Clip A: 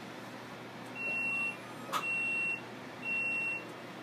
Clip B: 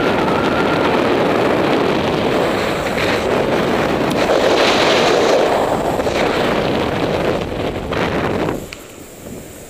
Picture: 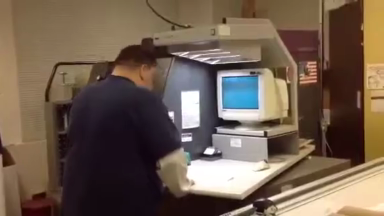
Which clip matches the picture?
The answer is A